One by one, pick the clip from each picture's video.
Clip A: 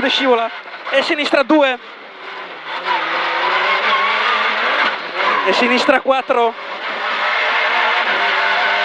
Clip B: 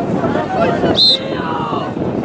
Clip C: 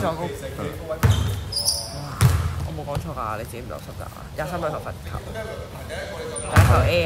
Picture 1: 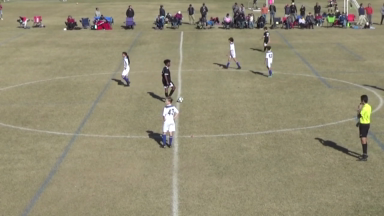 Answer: B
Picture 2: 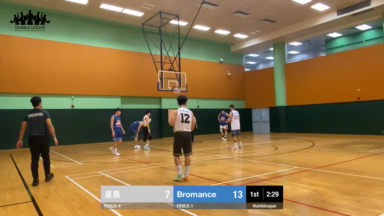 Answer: C